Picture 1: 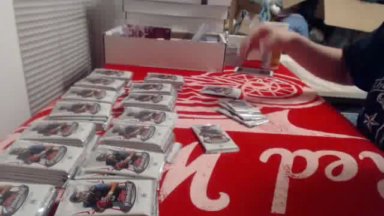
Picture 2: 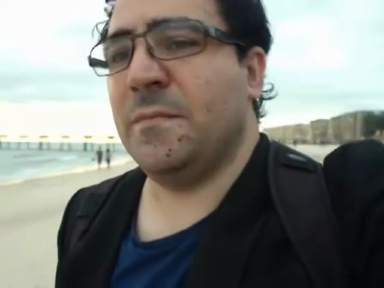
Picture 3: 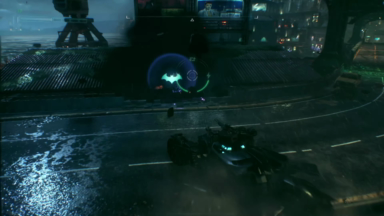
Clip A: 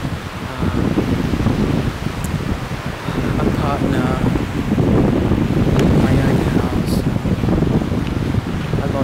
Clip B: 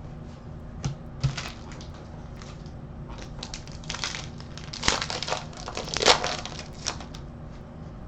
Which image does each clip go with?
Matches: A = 2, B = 1